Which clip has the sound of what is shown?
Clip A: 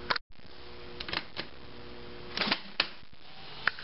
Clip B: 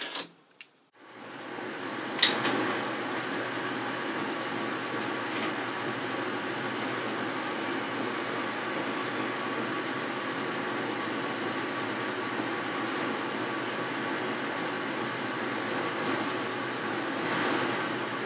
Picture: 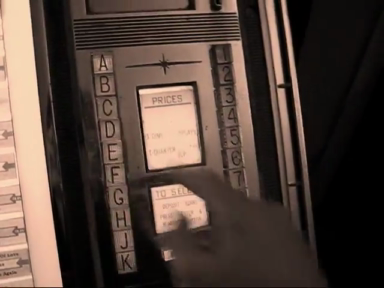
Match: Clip A